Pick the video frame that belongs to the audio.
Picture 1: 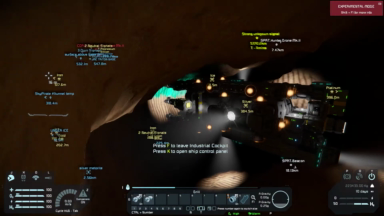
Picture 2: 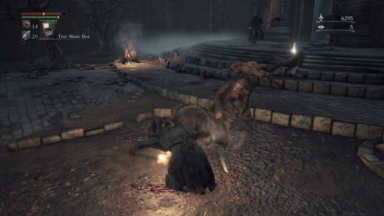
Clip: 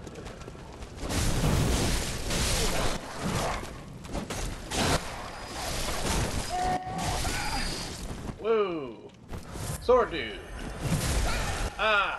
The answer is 2